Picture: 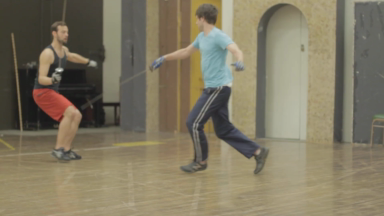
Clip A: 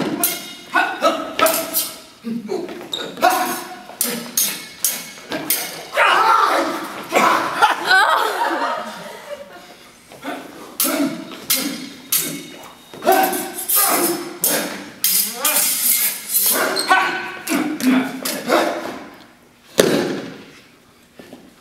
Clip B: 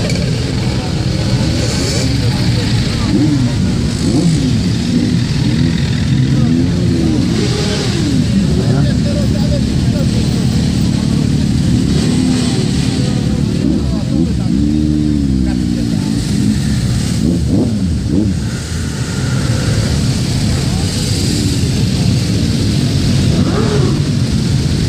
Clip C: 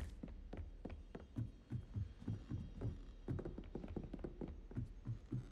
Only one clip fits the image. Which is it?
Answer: A